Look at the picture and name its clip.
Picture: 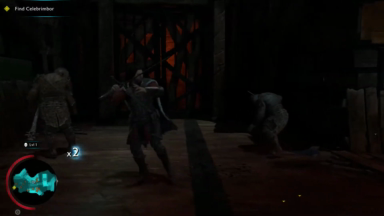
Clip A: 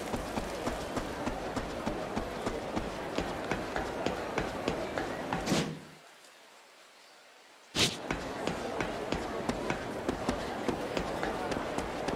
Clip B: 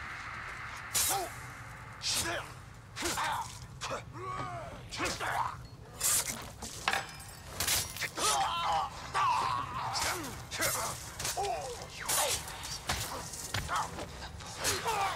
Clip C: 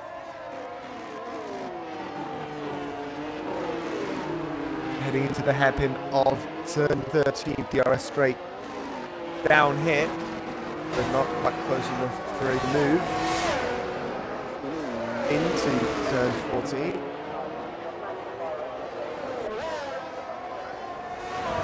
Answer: B